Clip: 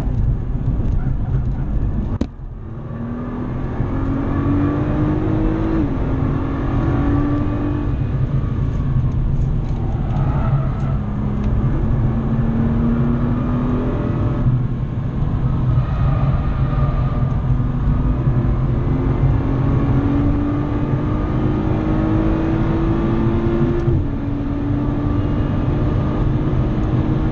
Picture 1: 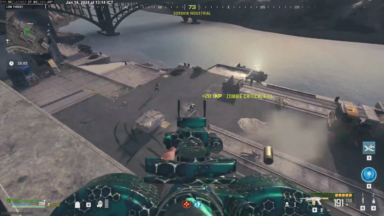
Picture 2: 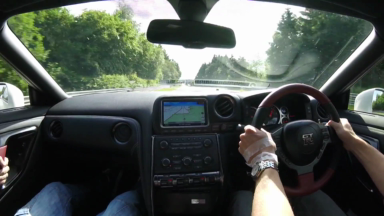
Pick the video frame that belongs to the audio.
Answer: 2